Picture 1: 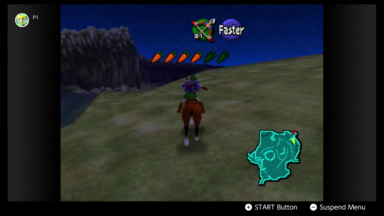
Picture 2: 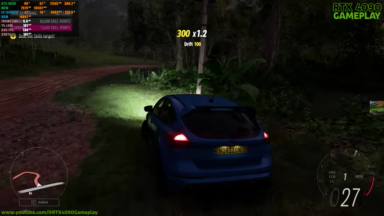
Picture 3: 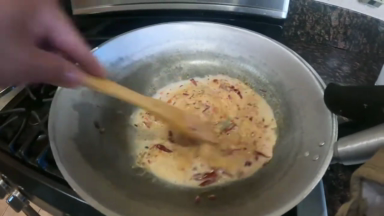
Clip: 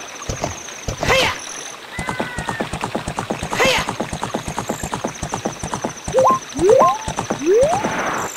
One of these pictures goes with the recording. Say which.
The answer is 1